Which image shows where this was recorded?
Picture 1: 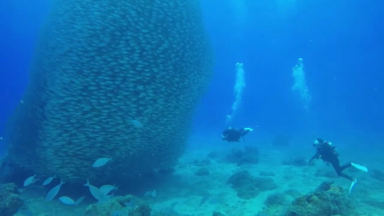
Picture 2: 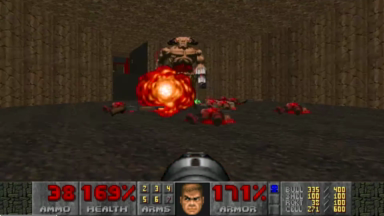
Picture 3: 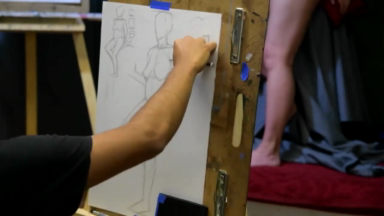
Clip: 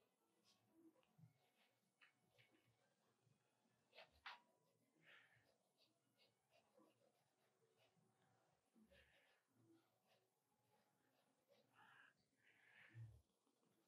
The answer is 3